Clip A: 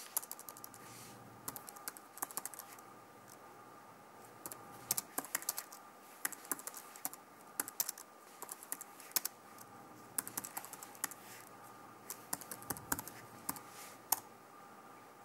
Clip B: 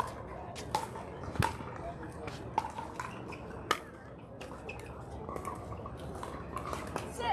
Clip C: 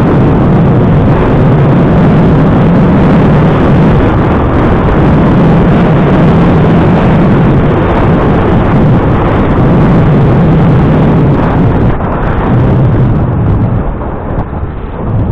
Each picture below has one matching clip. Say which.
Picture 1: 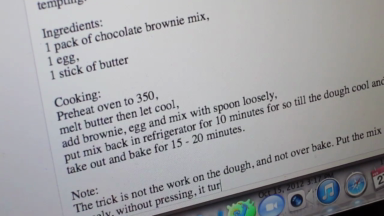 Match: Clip A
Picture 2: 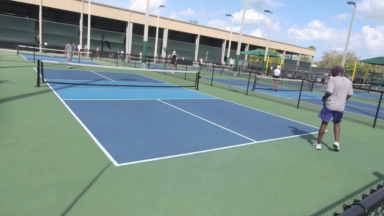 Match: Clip B